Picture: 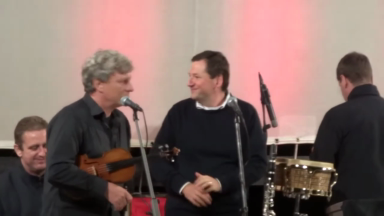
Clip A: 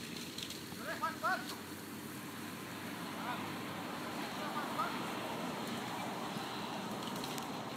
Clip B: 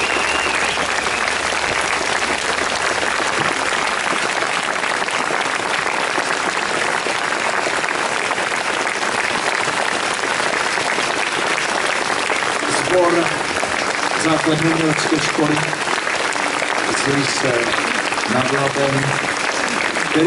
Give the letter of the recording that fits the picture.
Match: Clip B